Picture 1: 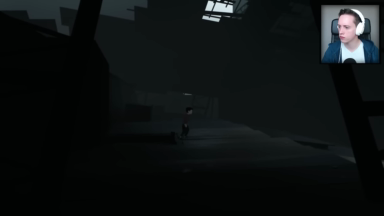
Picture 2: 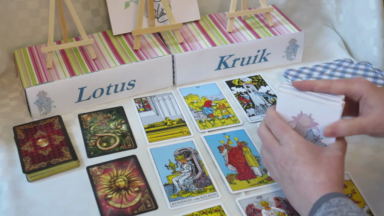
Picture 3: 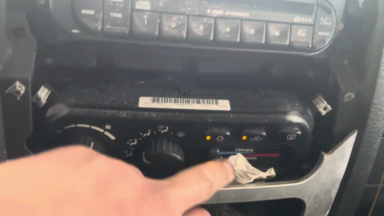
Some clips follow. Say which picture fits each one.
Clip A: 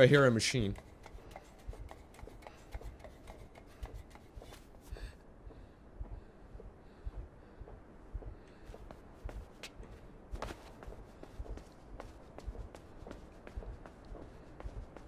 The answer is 1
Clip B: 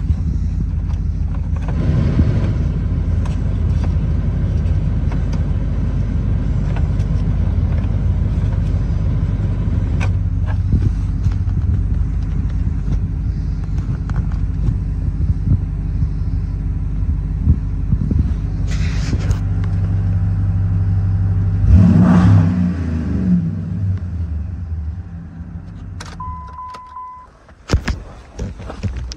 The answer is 3